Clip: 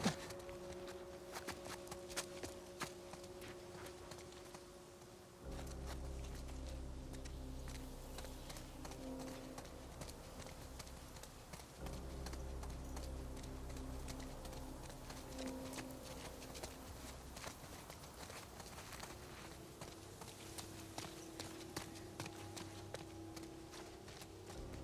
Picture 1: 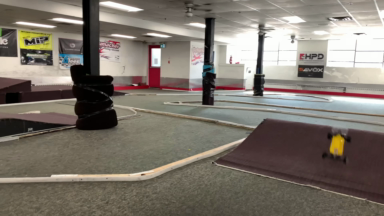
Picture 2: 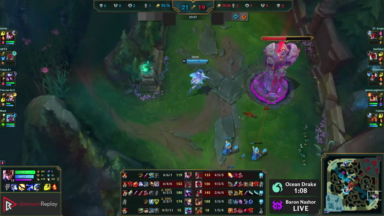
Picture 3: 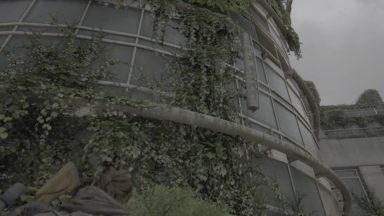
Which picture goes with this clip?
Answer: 3